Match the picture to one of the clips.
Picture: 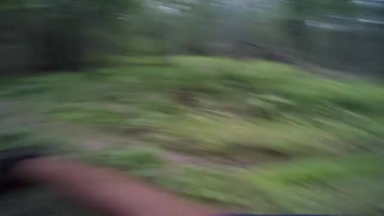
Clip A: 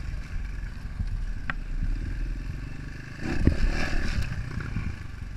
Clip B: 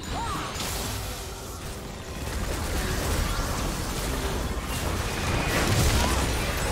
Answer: A